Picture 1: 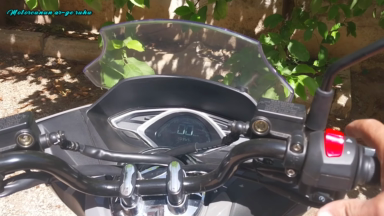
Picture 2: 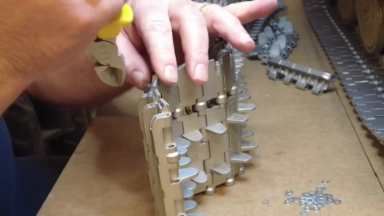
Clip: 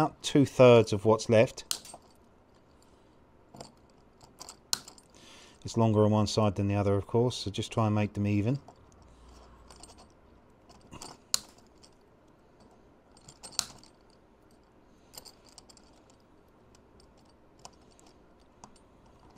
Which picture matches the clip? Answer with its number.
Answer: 2